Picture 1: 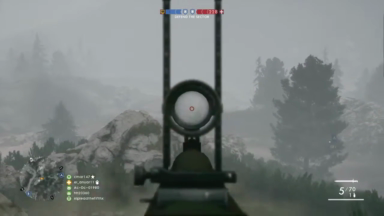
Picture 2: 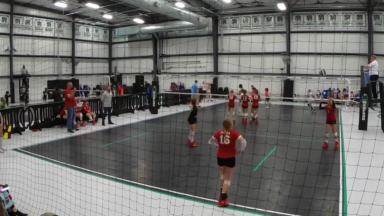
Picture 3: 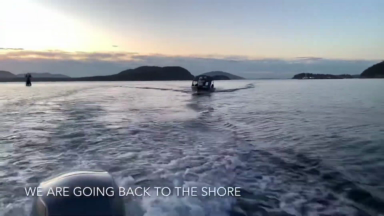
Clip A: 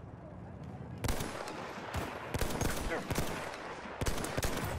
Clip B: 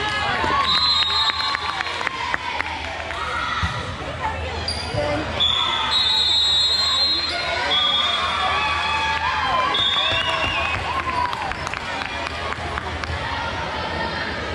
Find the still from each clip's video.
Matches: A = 1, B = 2